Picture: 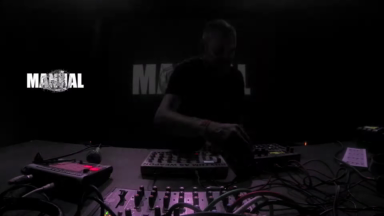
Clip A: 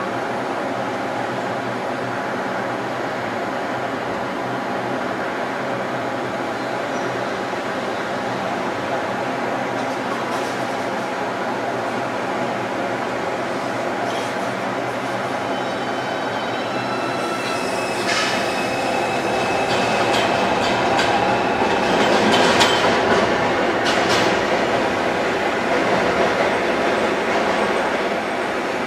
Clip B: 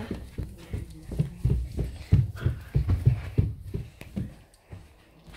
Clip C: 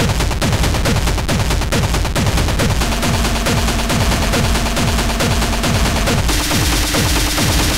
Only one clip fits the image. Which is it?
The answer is C